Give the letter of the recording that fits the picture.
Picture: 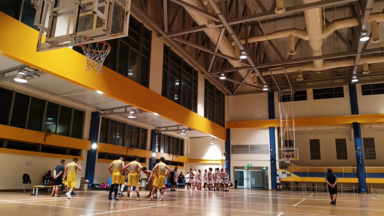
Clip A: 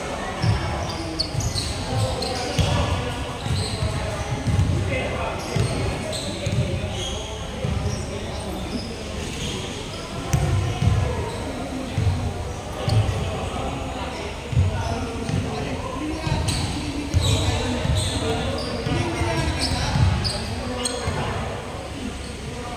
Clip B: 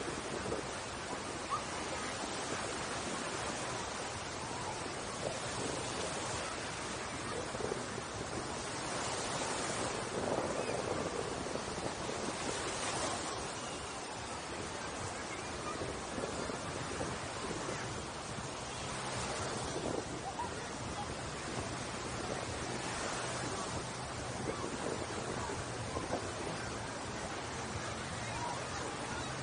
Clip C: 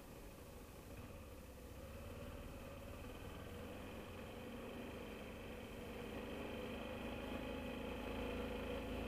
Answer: A